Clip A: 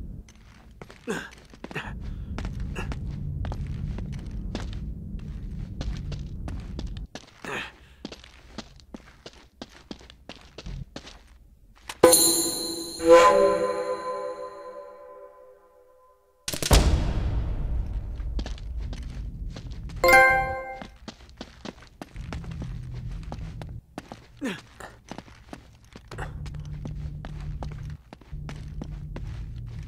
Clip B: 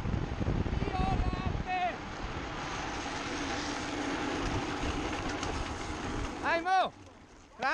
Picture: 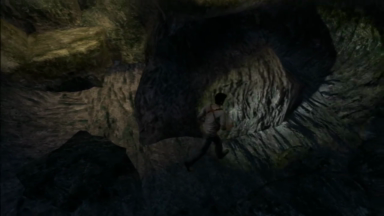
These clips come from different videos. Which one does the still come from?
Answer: A